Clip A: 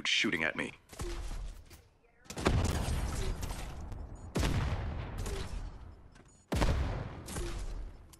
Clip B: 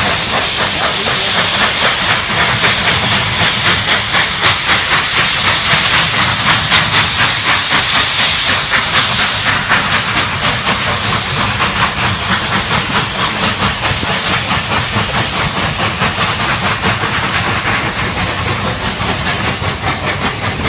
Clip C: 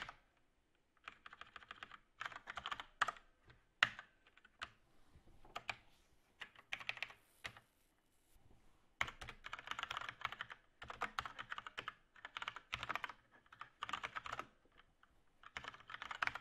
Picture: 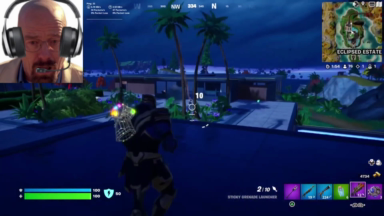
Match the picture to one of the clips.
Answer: A